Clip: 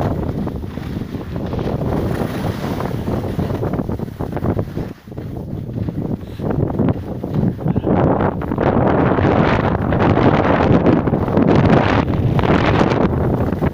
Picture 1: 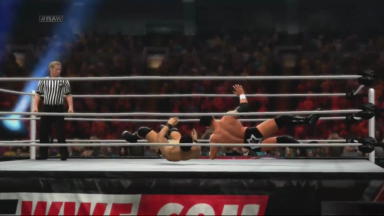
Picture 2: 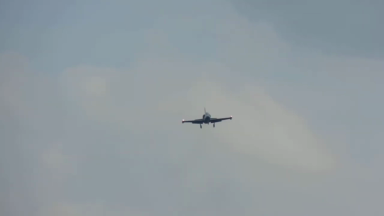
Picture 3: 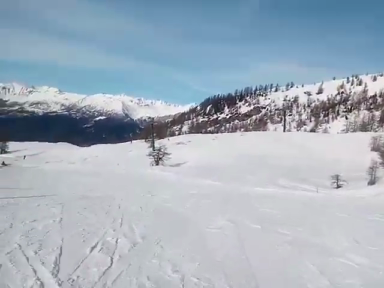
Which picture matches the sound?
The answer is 3